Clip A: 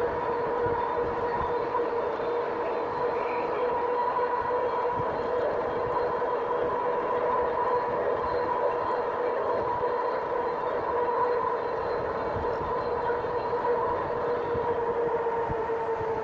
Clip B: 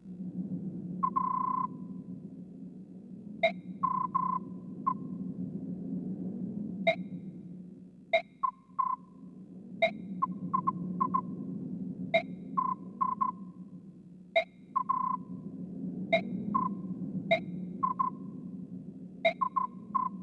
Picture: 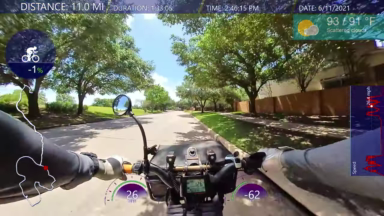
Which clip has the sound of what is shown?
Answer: A